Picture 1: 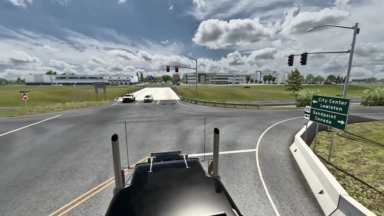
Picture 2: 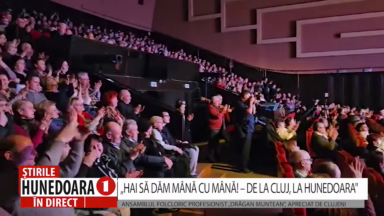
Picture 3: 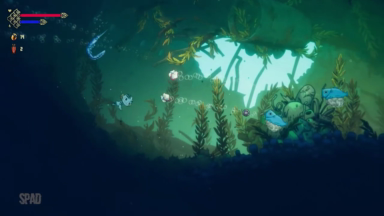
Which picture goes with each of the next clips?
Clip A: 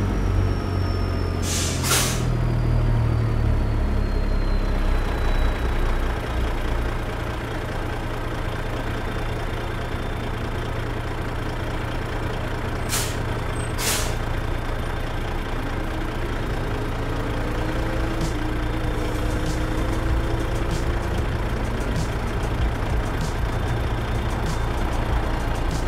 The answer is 1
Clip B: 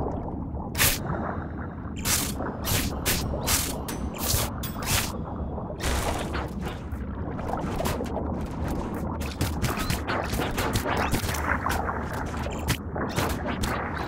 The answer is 3